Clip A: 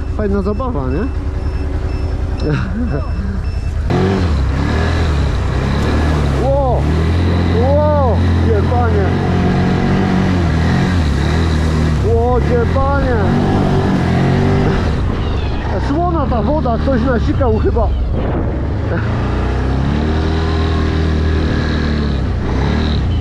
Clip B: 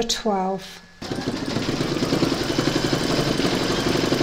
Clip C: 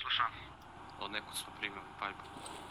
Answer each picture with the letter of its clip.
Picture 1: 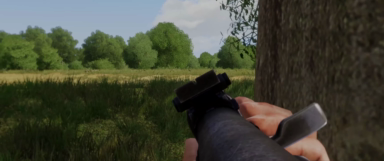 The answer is C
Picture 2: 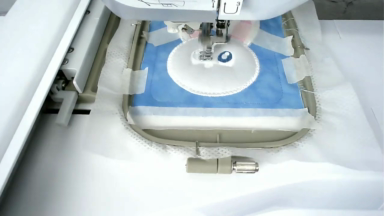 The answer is B